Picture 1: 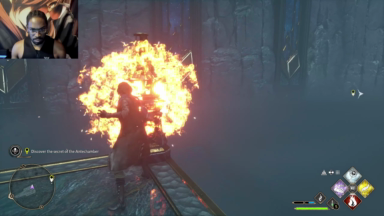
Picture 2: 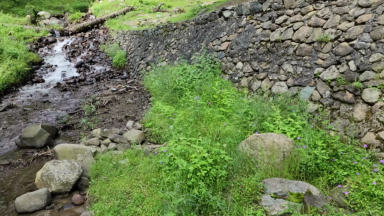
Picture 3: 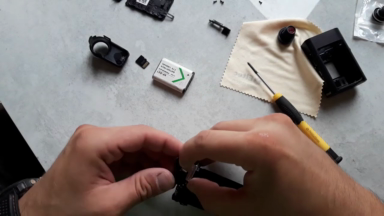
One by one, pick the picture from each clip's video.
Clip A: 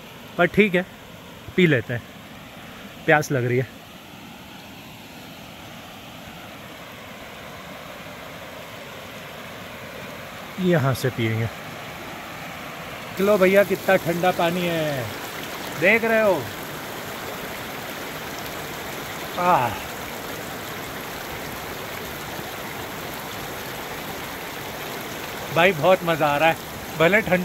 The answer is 2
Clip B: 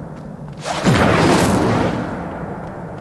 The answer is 1